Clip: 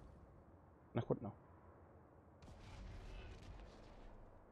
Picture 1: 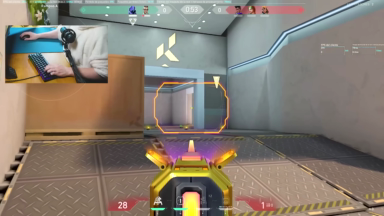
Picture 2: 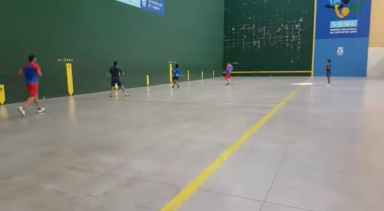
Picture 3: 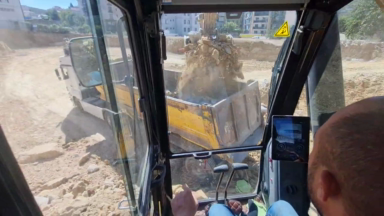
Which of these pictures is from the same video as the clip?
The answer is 1